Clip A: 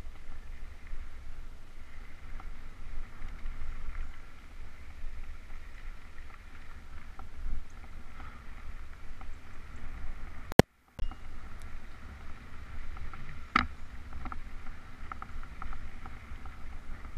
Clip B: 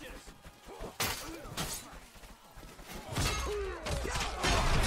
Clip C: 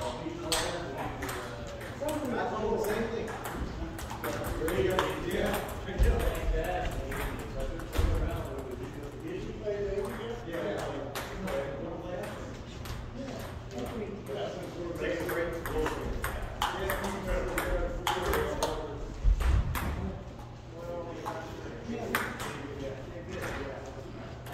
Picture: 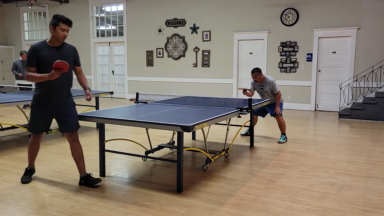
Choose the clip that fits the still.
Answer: C